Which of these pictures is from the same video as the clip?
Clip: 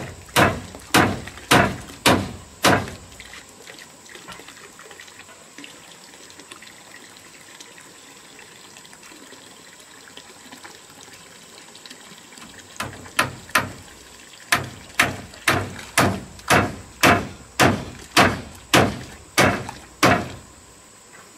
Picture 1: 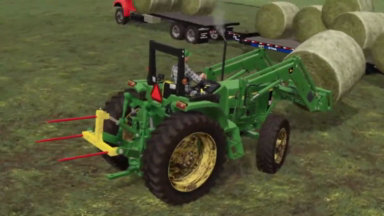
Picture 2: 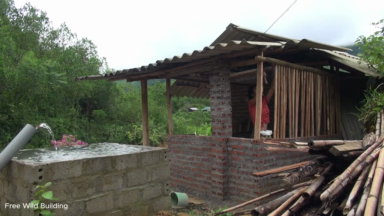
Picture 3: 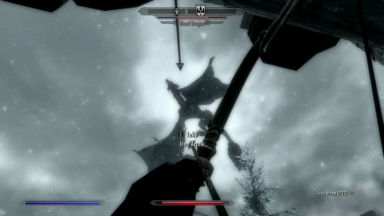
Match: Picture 2